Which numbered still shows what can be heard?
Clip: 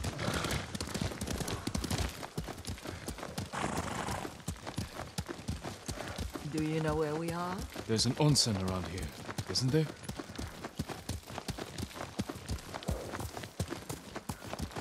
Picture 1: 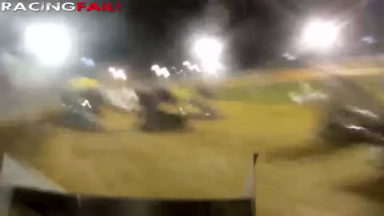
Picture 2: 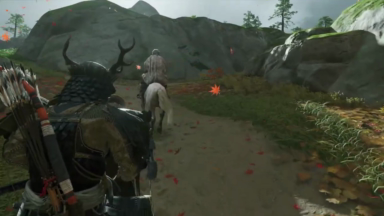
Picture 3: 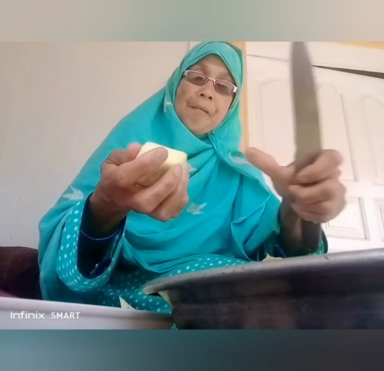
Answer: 2